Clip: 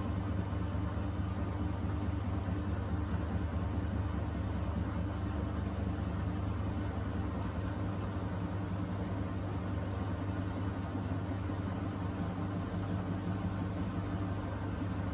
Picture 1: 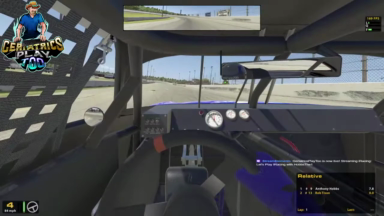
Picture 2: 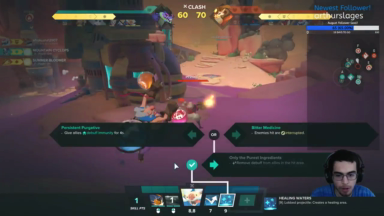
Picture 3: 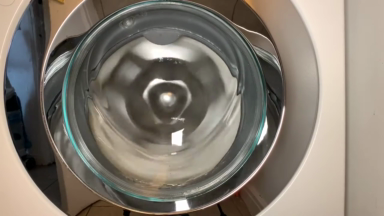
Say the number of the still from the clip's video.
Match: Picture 3